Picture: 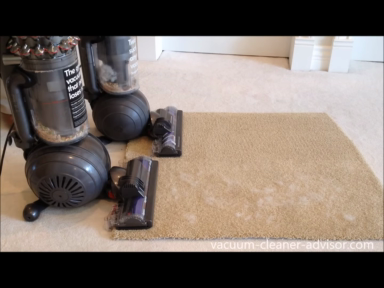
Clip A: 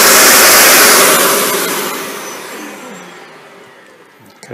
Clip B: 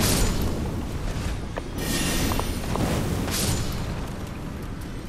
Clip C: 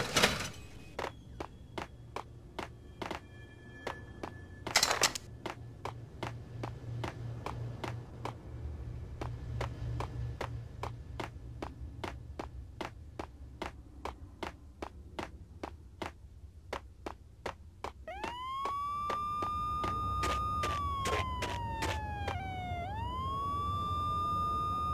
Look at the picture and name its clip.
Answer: A